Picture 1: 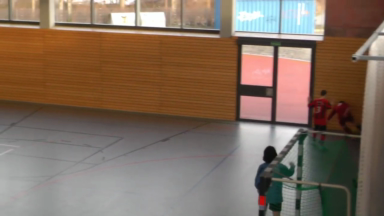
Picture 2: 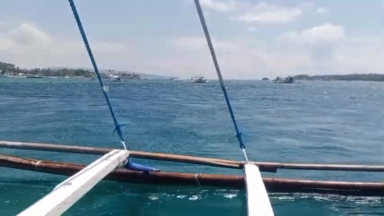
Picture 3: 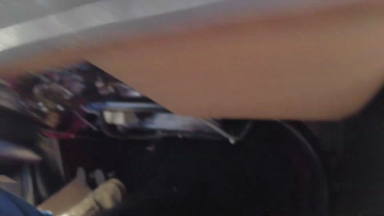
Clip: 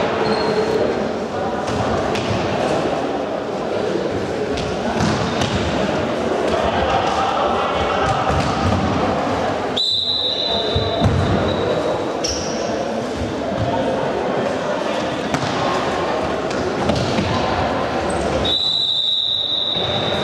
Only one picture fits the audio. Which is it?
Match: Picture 1